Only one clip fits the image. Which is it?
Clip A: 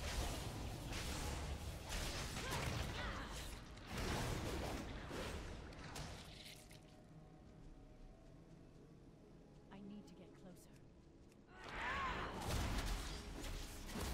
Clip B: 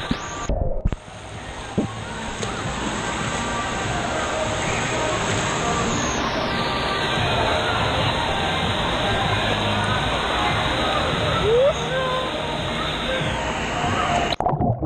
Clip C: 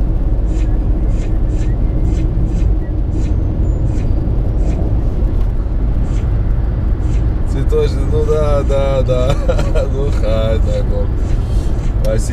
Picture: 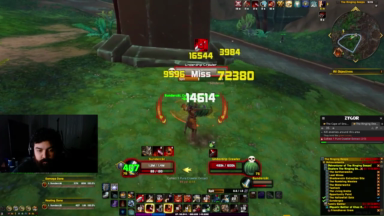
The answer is A